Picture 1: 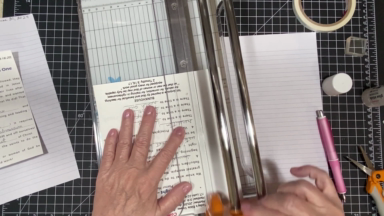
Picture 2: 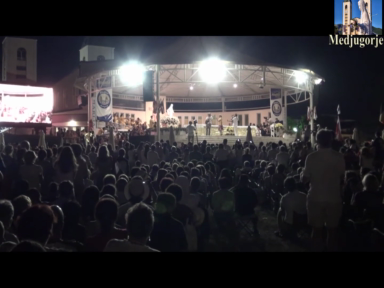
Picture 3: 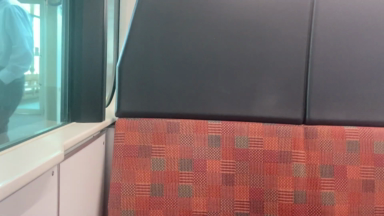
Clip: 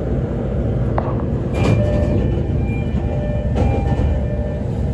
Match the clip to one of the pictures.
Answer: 3